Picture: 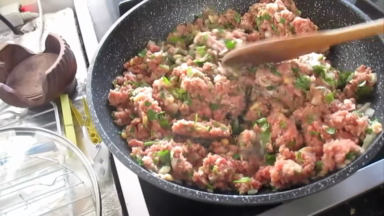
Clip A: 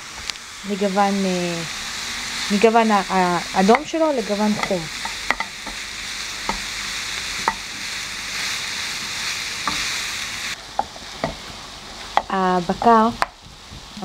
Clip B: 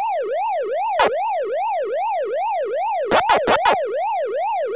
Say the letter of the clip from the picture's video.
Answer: A